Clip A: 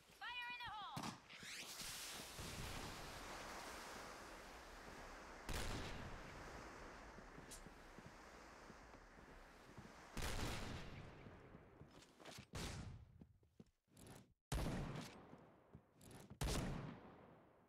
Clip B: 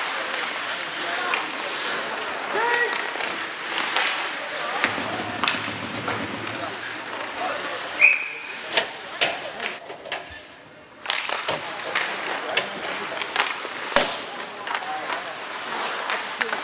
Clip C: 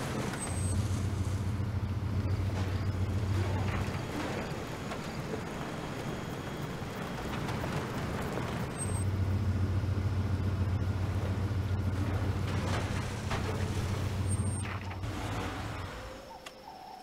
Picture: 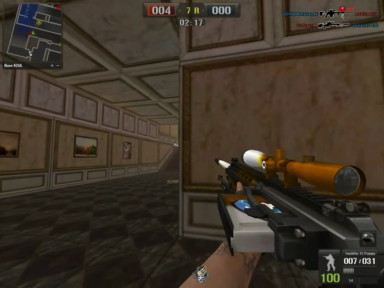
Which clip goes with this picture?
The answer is A